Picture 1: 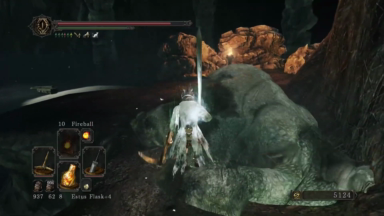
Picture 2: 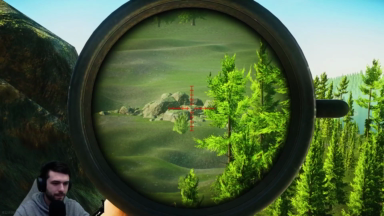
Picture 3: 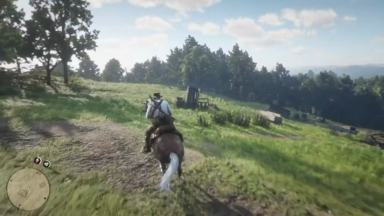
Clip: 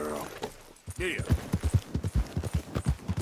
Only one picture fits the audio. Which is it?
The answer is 3